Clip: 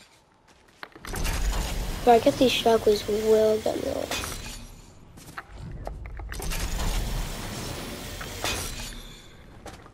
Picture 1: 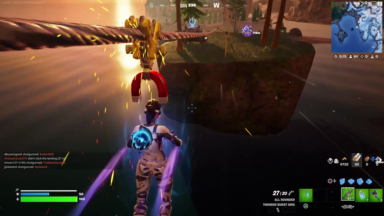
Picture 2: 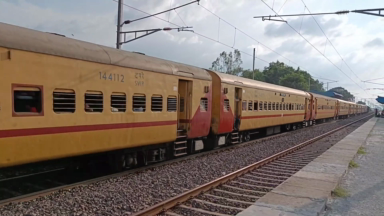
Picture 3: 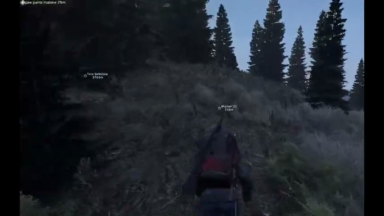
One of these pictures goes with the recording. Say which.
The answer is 1